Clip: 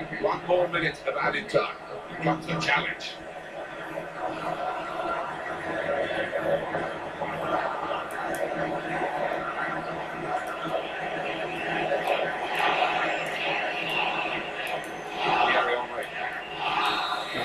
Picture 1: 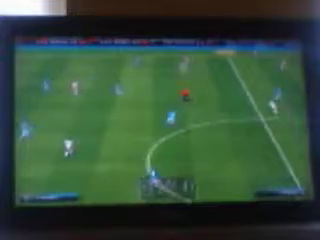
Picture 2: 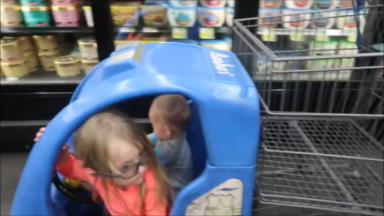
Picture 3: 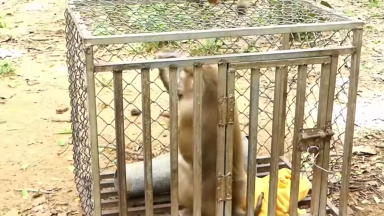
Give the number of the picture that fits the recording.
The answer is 1